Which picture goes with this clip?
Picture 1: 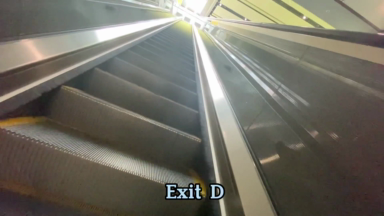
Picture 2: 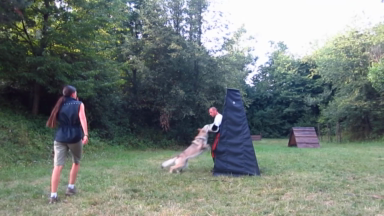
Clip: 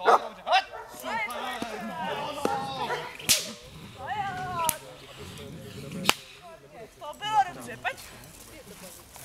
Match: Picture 2